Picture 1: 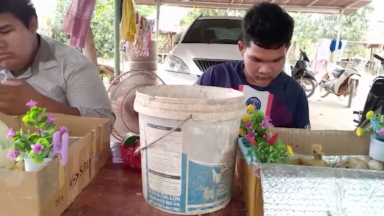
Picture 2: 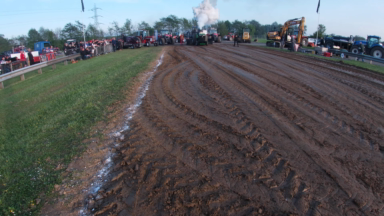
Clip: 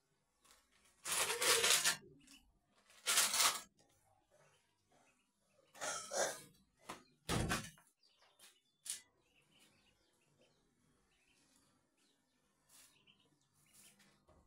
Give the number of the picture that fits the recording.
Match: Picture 1